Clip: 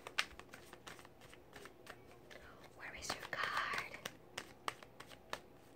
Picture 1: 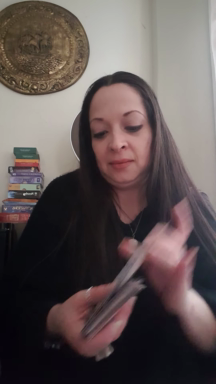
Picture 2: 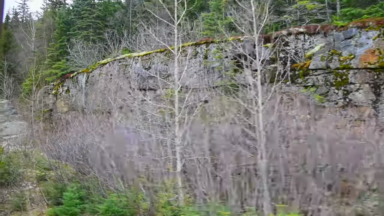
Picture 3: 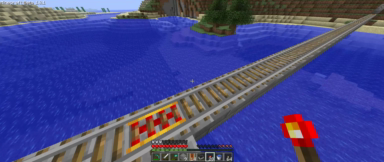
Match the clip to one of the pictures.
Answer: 1